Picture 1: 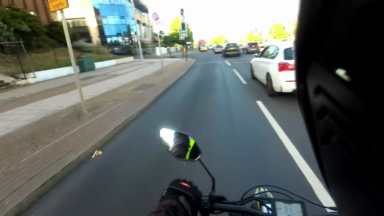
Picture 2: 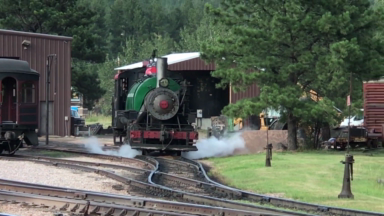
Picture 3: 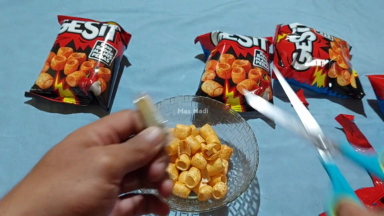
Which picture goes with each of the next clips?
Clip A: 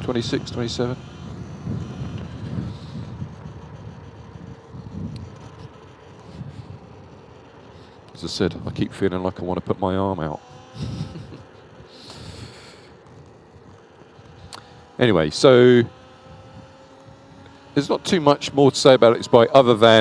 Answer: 1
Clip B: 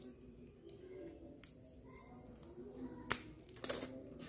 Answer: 3